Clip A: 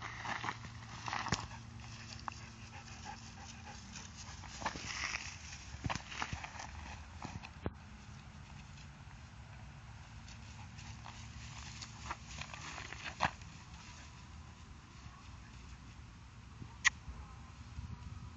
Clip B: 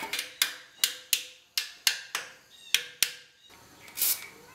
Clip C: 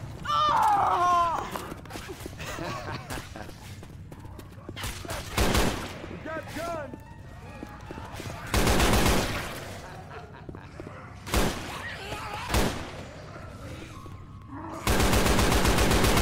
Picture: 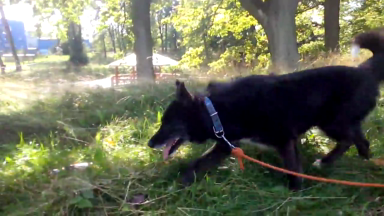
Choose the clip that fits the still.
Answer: A